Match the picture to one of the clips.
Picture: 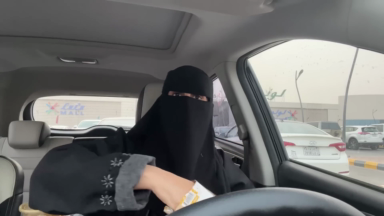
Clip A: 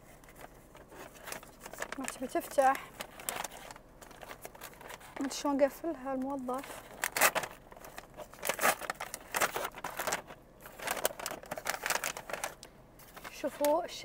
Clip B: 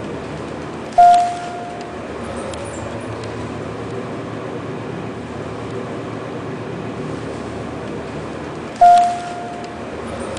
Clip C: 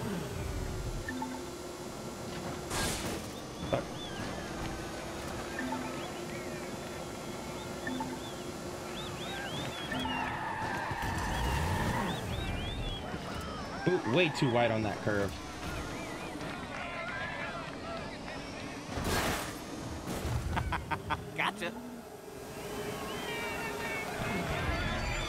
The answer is A